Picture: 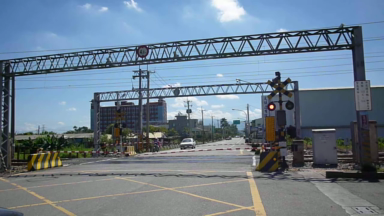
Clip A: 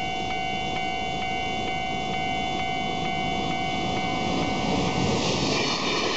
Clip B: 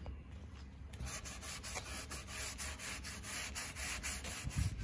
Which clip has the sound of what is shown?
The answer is A